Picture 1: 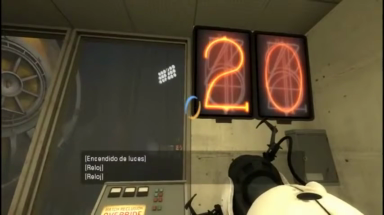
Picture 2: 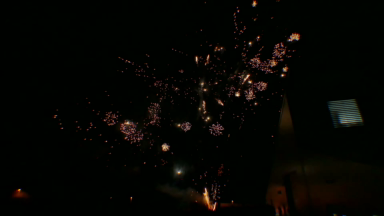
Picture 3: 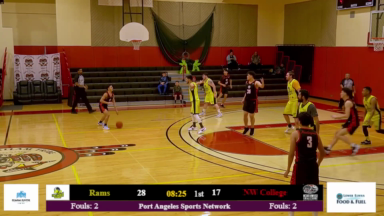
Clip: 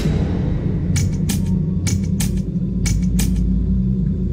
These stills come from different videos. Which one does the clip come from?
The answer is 1